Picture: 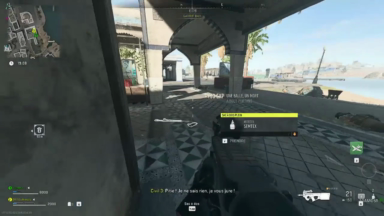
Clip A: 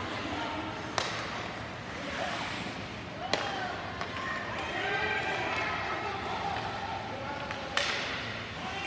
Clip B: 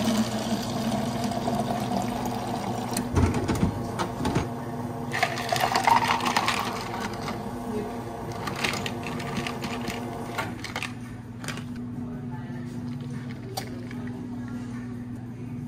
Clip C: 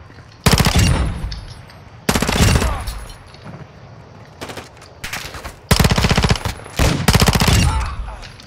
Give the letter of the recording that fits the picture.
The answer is C